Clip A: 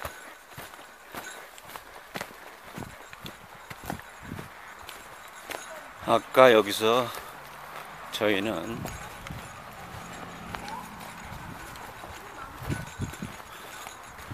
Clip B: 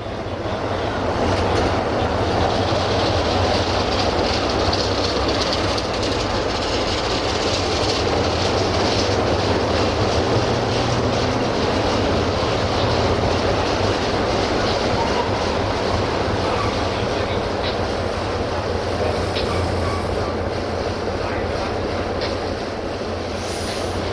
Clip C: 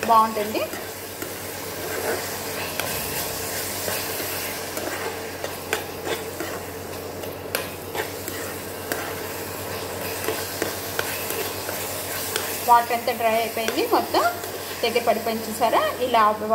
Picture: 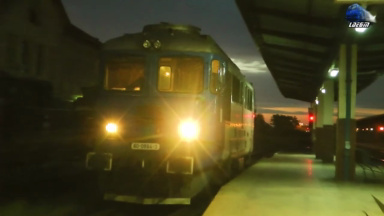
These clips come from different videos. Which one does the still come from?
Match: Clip B